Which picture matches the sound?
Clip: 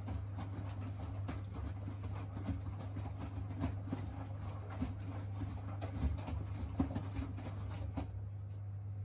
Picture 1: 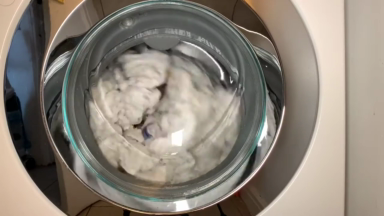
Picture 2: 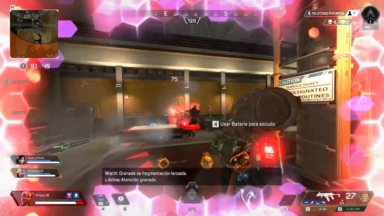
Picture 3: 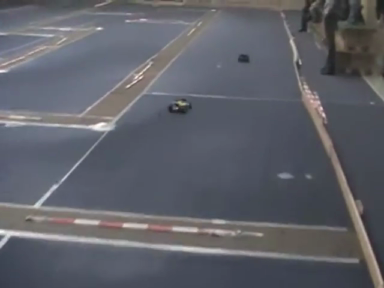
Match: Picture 1